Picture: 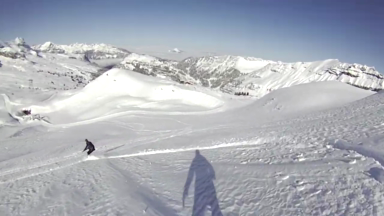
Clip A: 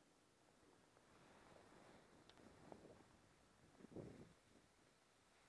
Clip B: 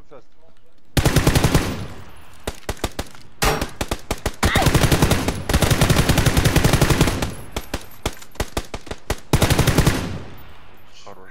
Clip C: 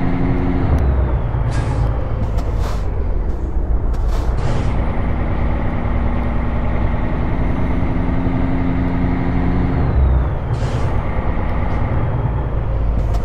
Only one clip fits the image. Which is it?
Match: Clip A